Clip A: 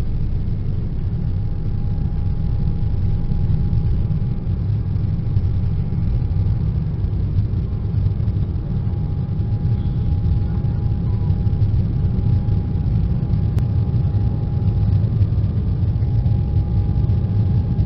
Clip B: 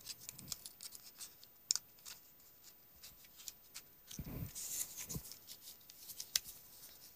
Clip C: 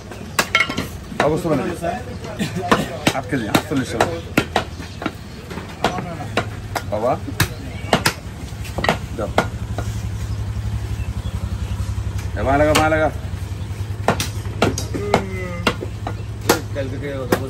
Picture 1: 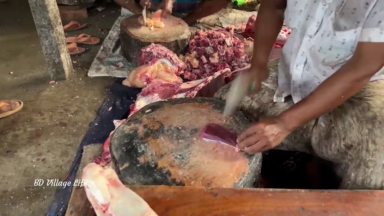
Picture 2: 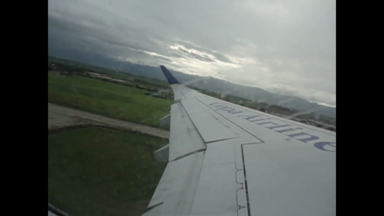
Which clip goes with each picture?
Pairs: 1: C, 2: A